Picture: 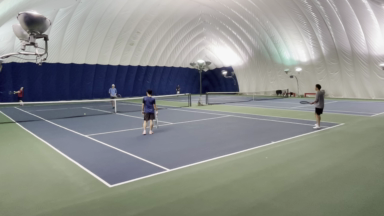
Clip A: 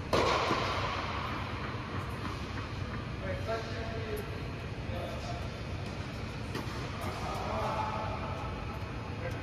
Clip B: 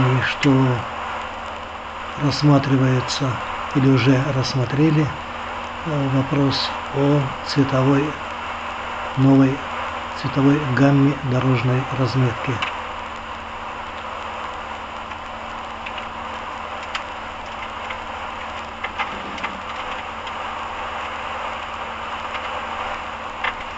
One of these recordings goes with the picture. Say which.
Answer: A